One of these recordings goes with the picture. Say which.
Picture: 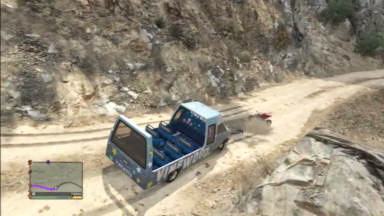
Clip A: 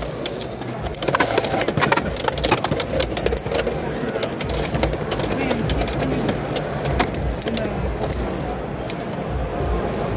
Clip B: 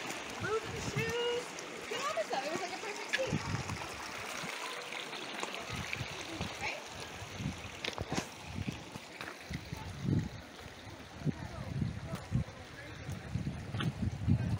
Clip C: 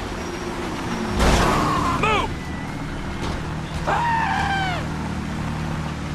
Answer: C